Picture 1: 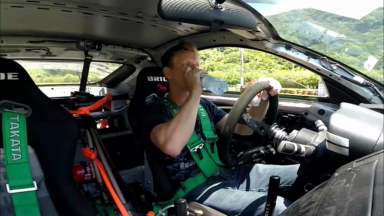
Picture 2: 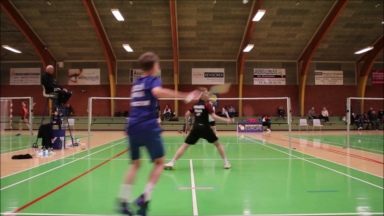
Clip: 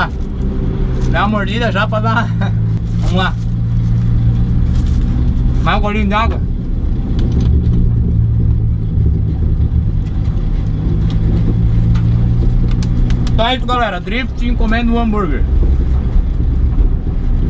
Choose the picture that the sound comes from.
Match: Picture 1